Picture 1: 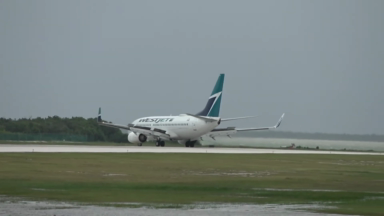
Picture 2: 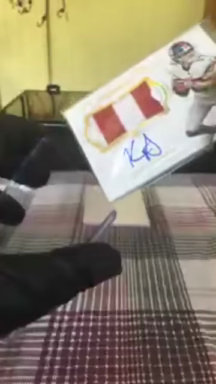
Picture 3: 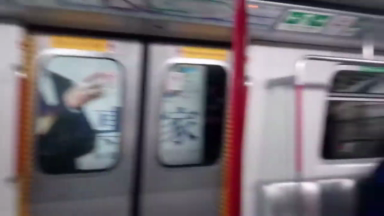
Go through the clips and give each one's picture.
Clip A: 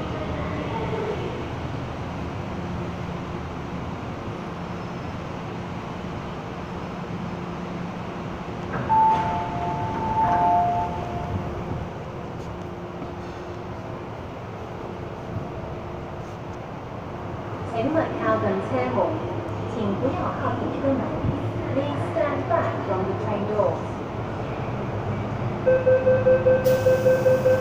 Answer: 3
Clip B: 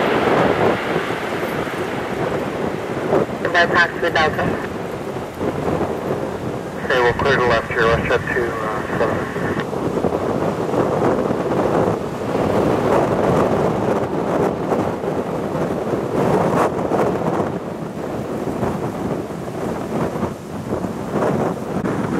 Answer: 1